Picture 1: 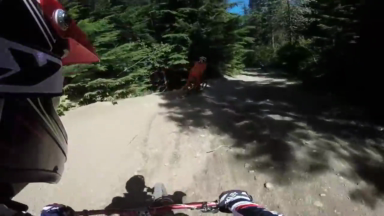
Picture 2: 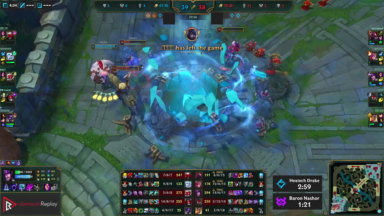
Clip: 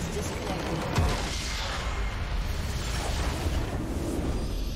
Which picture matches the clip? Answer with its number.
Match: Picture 2